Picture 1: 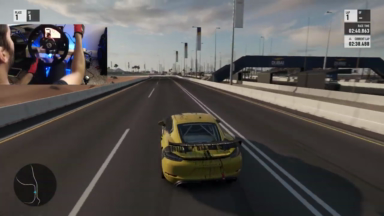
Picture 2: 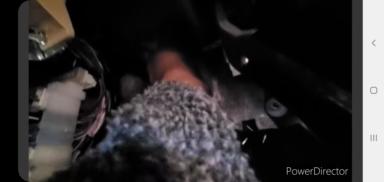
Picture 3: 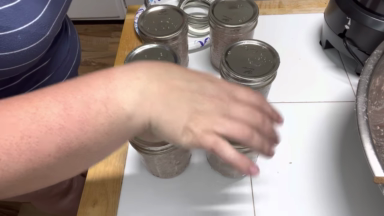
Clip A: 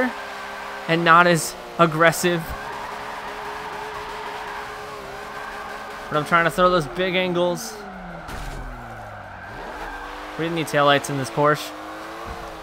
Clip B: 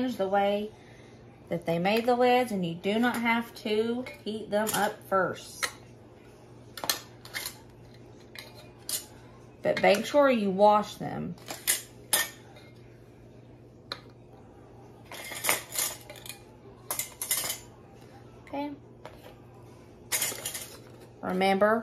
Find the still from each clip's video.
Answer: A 1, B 3